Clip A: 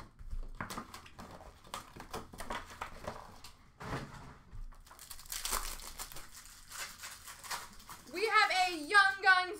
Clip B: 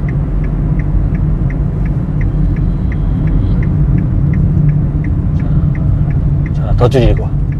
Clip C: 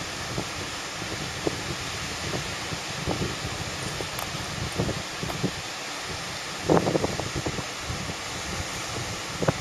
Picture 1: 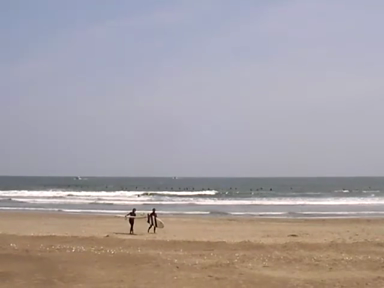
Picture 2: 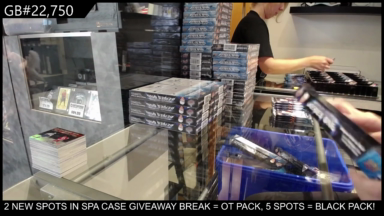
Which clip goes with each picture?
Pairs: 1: C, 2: A